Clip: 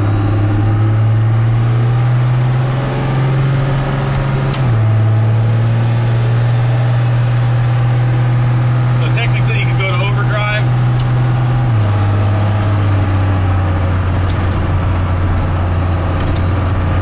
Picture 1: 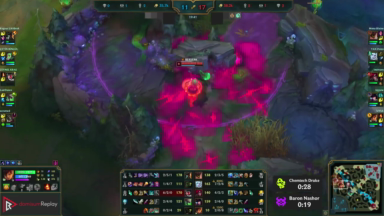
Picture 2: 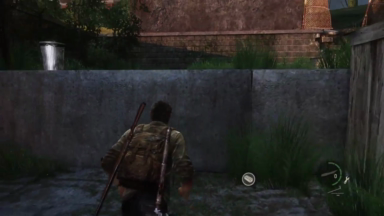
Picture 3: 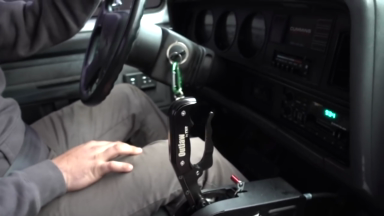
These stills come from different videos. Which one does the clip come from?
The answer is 3